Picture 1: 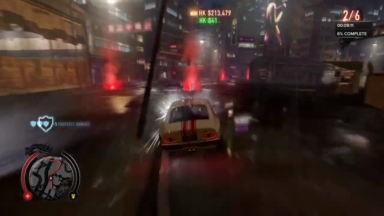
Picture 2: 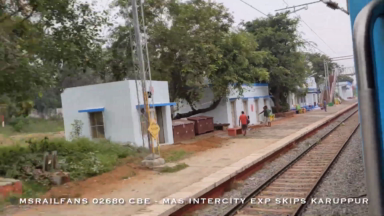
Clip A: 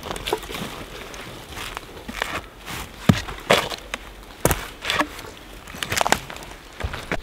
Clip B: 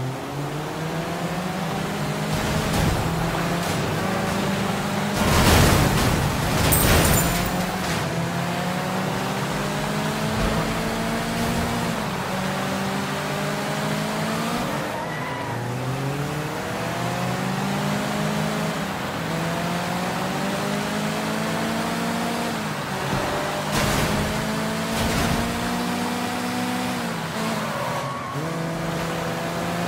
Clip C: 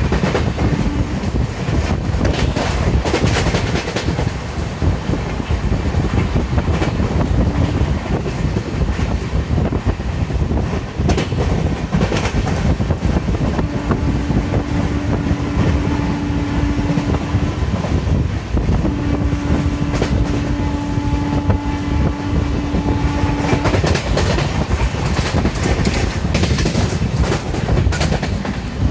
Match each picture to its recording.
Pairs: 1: B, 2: C